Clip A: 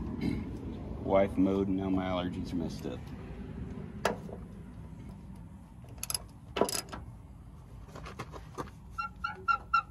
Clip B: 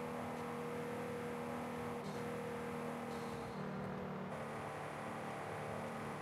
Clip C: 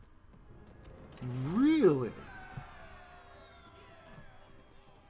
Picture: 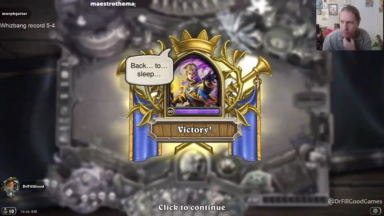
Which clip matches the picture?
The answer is C